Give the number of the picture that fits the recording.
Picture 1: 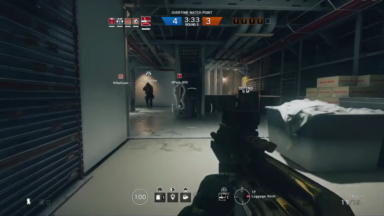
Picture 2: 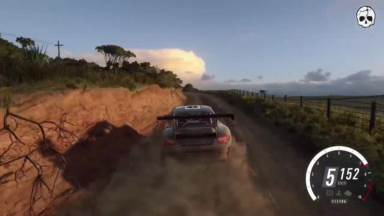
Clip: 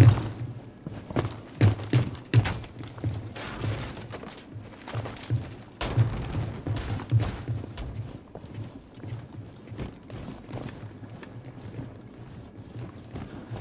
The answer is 1